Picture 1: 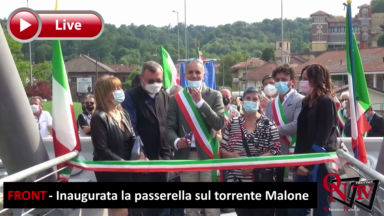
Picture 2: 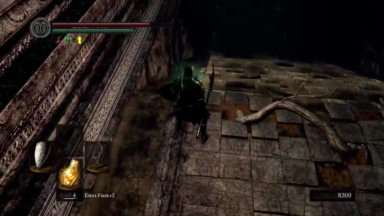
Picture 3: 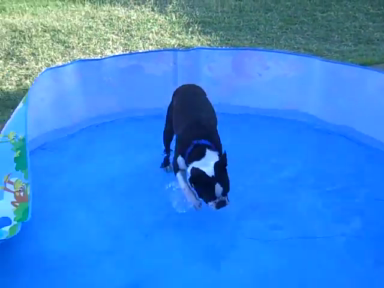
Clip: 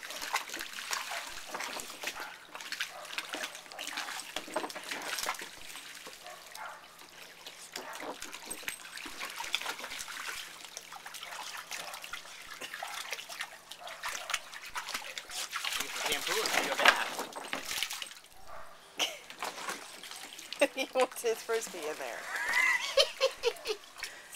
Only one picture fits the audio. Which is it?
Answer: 3